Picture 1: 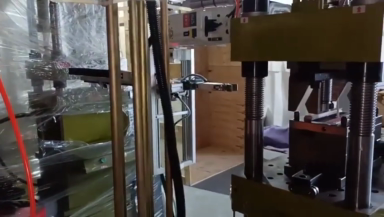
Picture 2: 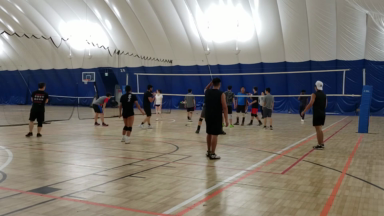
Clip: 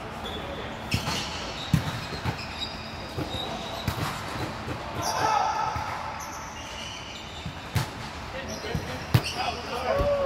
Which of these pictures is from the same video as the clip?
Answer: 2